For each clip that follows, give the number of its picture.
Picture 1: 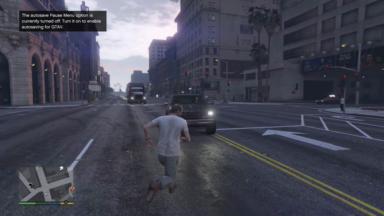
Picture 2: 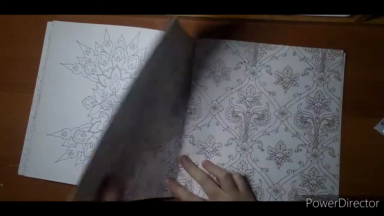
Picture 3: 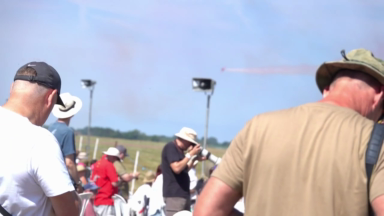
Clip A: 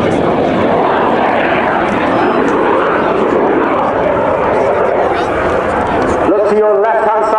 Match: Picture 3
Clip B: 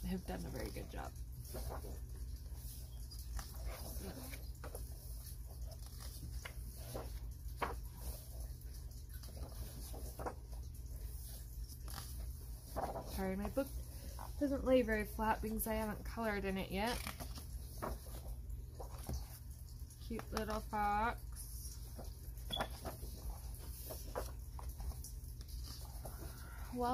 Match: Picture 2